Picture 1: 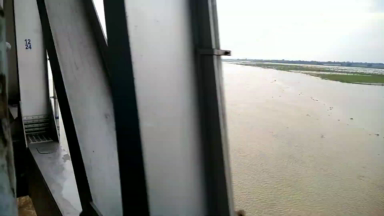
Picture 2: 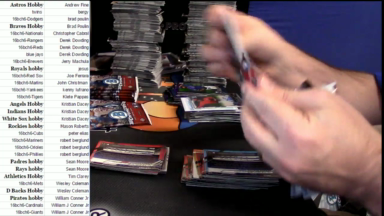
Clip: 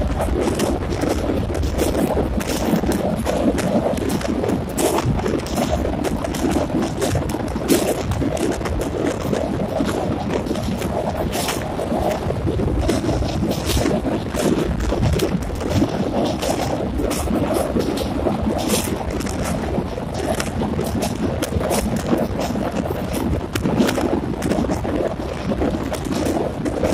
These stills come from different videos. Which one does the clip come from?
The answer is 1